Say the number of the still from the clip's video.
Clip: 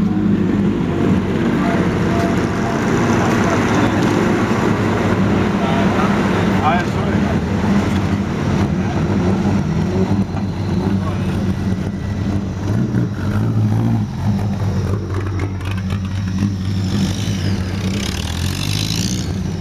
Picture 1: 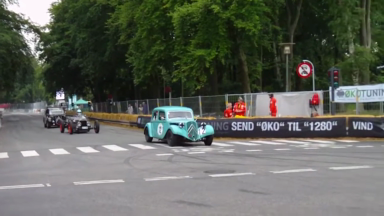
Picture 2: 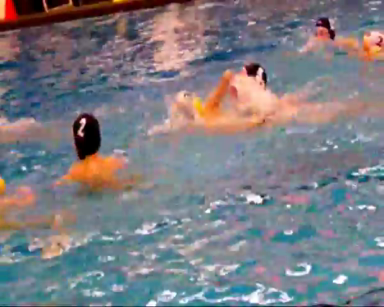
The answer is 1